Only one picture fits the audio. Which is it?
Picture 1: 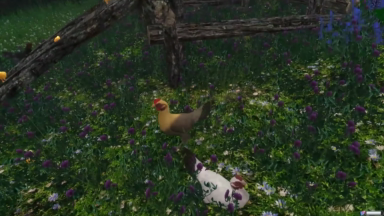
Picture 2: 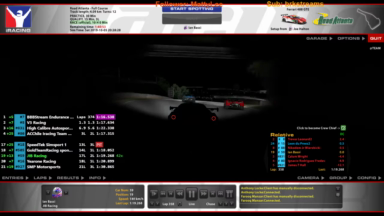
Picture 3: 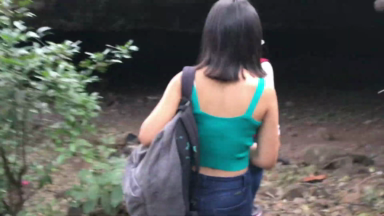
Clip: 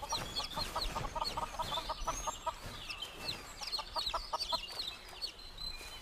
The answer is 1